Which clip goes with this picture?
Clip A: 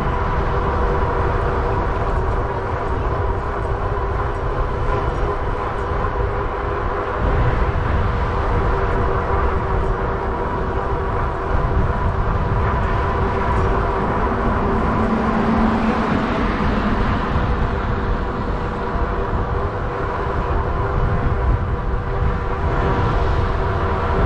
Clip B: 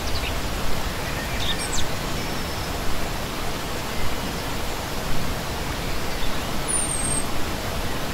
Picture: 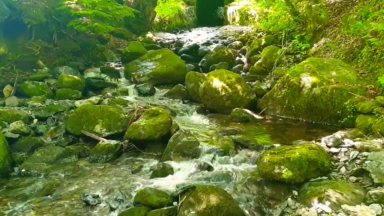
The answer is B